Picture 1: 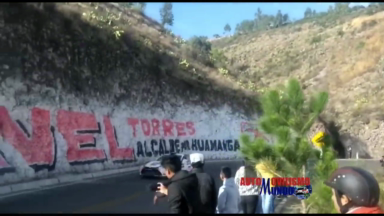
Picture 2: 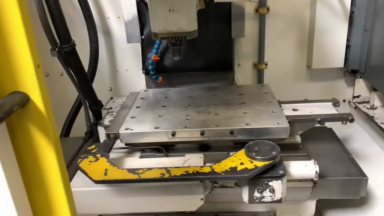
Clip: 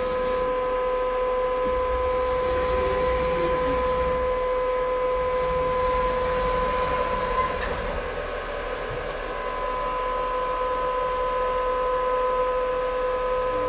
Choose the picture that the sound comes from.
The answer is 2